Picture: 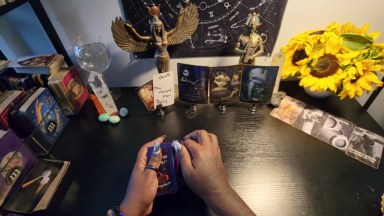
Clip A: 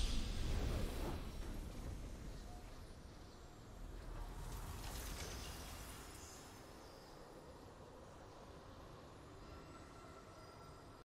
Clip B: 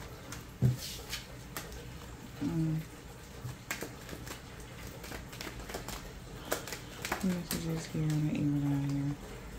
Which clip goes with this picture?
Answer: B